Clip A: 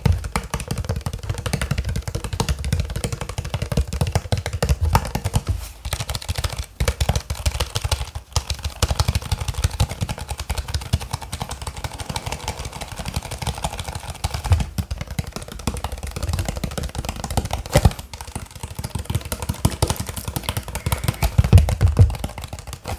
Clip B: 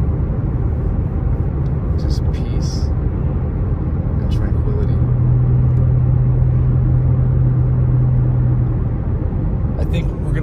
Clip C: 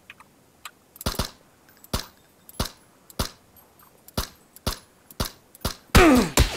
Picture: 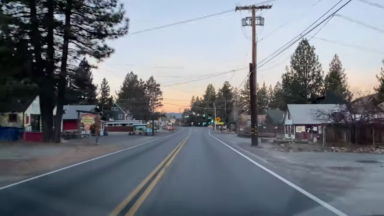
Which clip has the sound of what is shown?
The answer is B